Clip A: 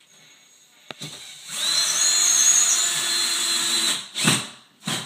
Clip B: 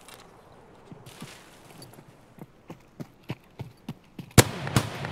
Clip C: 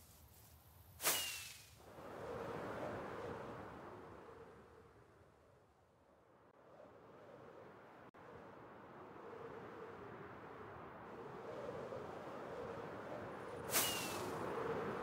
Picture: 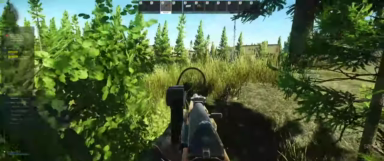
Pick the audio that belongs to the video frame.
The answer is B